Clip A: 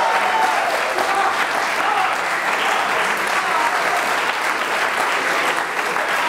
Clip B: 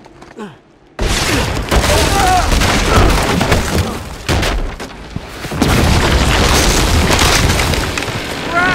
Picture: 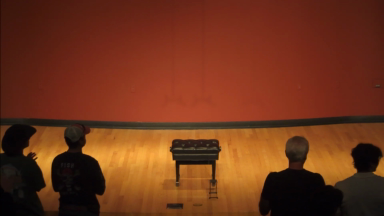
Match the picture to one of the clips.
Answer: A